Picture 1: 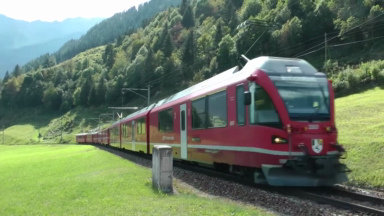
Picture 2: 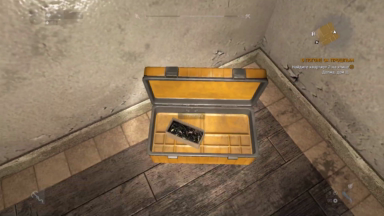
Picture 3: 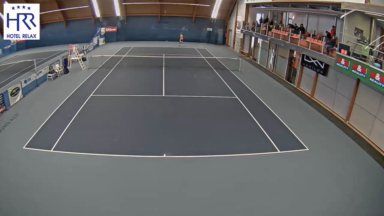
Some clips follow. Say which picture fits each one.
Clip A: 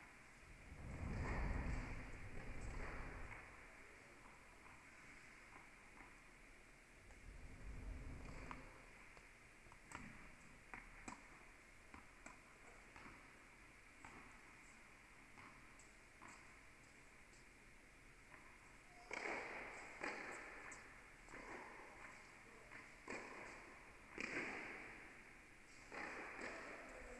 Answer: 3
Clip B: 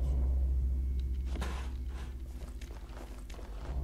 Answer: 2